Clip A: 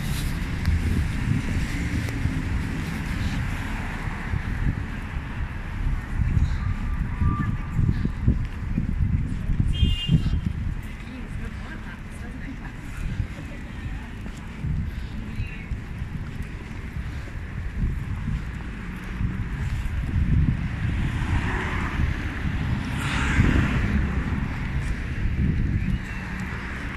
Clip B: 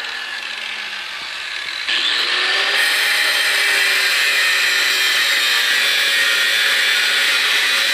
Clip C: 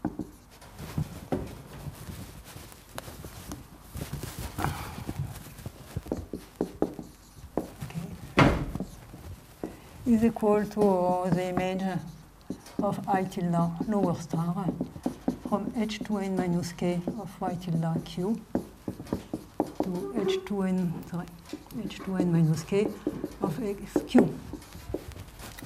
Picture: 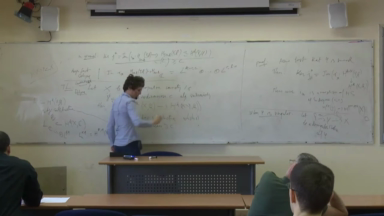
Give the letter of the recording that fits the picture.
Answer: C